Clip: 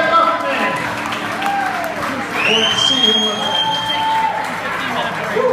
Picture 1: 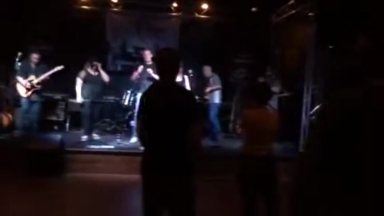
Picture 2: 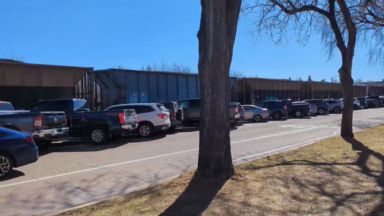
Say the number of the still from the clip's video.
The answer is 1